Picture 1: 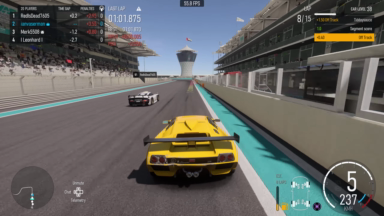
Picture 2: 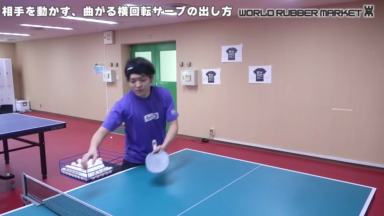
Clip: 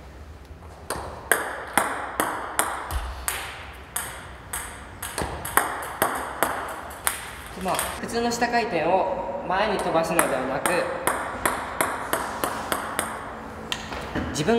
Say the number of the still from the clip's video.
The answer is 2